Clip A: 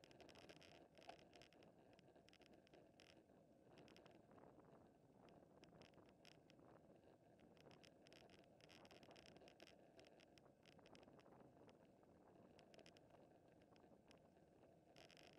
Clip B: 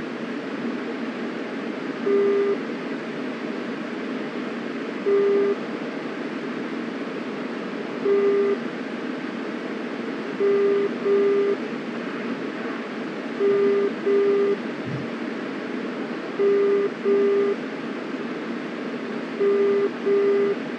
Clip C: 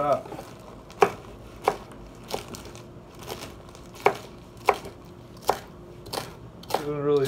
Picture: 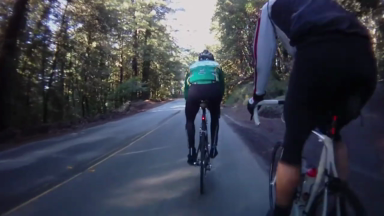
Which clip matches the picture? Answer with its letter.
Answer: A